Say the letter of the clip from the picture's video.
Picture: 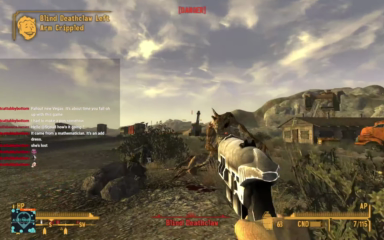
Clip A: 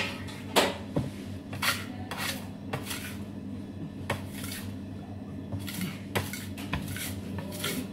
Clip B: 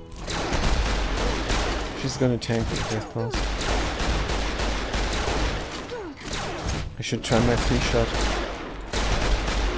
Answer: B